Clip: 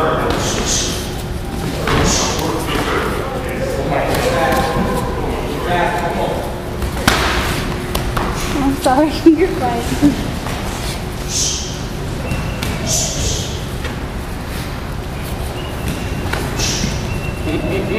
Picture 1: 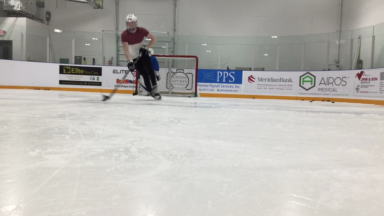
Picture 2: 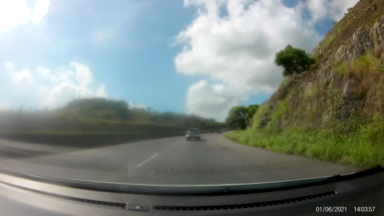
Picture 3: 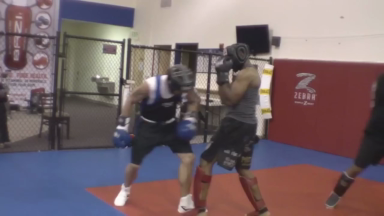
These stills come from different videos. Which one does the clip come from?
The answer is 3